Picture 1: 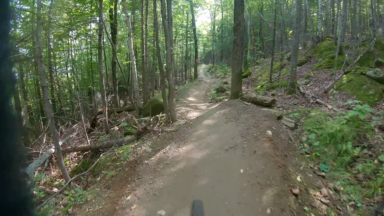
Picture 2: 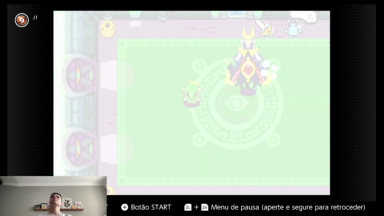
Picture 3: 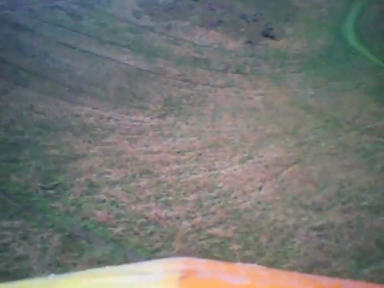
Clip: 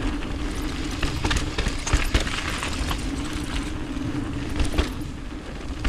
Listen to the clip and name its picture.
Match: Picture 1